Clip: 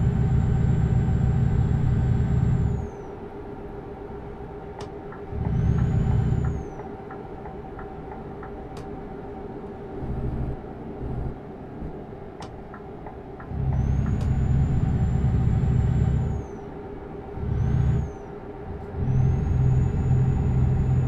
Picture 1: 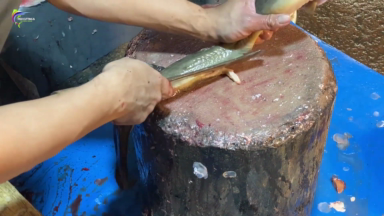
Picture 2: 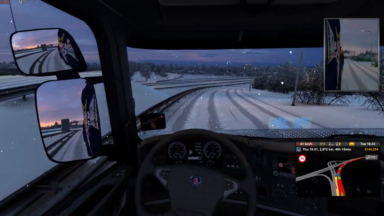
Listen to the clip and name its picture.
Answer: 2